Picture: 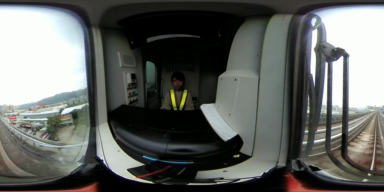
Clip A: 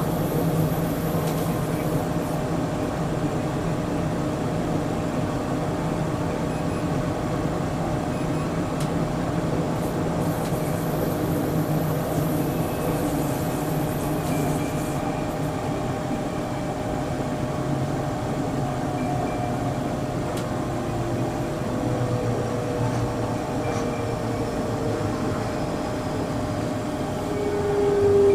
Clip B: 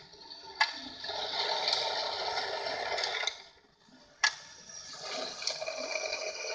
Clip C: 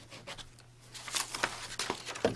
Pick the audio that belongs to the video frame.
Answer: A